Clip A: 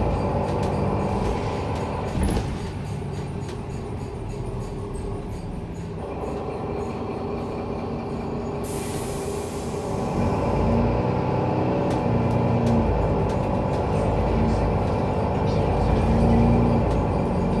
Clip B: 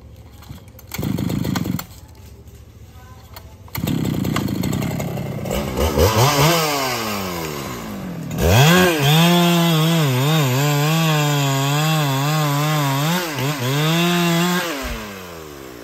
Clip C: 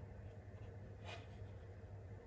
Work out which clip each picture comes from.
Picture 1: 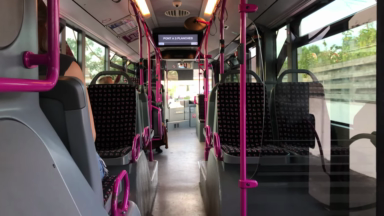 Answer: A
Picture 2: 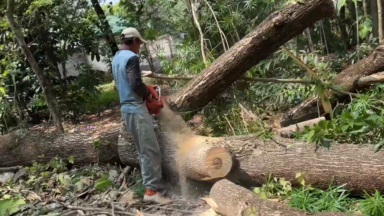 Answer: B